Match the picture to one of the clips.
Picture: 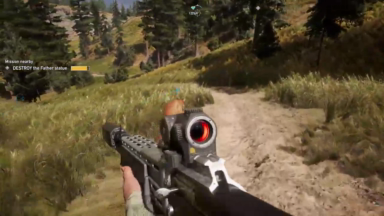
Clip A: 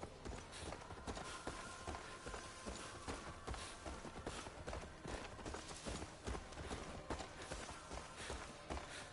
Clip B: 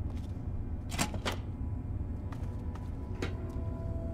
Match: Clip A